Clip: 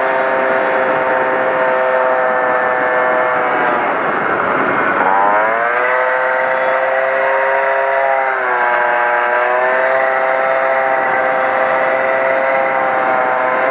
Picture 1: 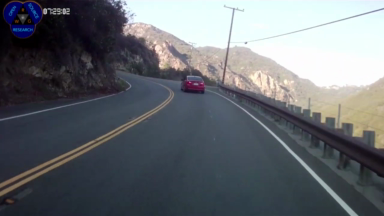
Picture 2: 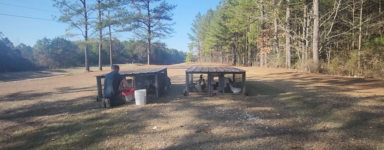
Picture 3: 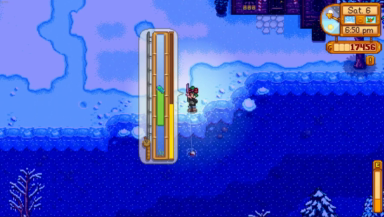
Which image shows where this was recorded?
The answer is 1